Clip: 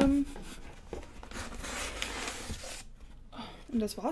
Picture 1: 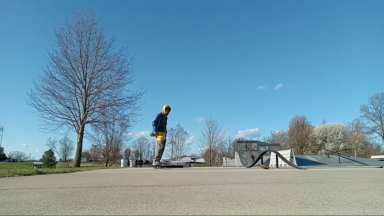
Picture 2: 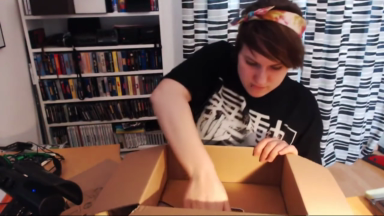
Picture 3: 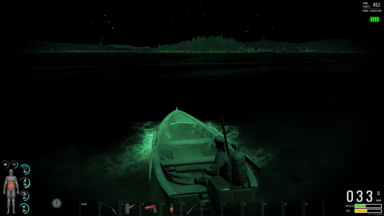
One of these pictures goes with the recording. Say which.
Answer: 2